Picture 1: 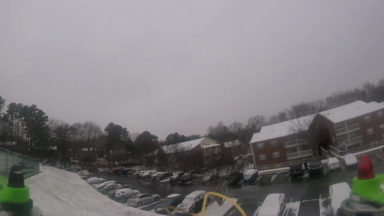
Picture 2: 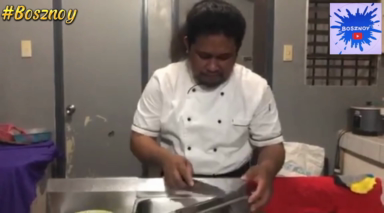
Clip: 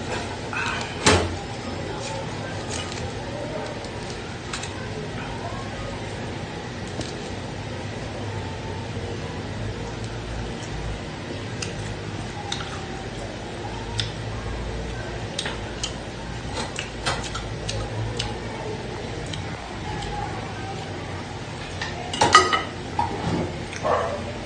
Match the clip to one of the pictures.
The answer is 2